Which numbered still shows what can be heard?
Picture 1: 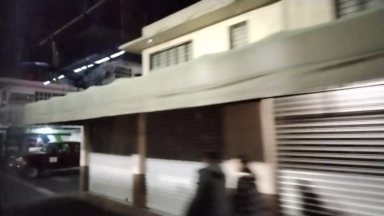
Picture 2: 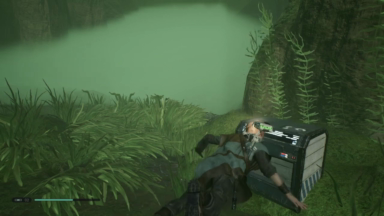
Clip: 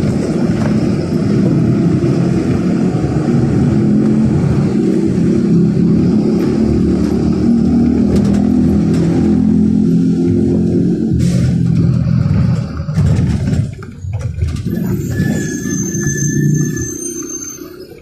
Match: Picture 1